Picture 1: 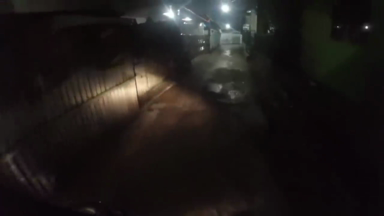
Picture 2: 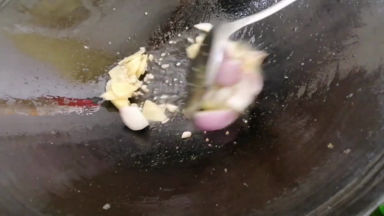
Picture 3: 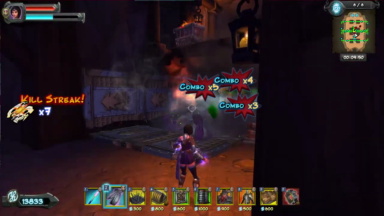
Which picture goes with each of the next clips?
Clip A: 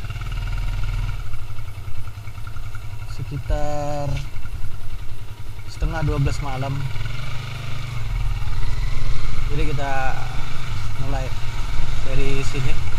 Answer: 1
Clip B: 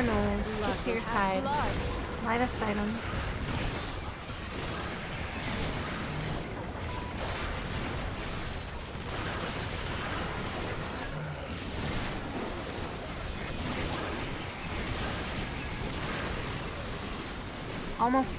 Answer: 3